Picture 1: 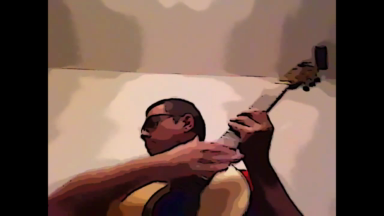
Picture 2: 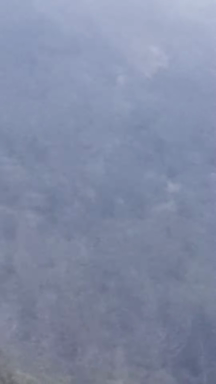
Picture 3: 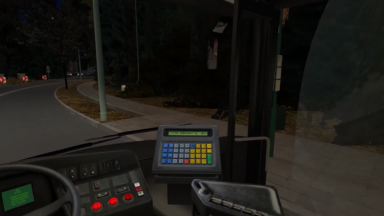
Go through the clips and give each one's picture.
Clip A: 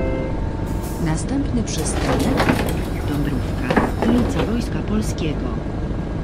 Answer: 3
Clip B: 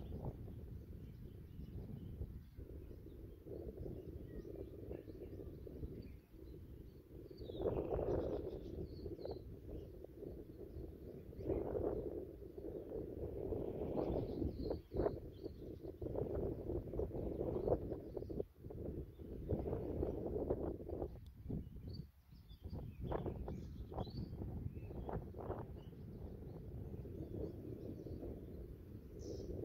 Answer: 2